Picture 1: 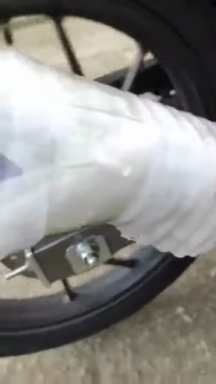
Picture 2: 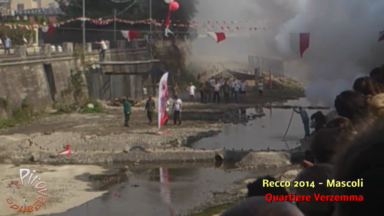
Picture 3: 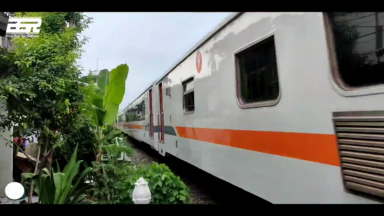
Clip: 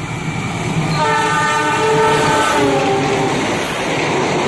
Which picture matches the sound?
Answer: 3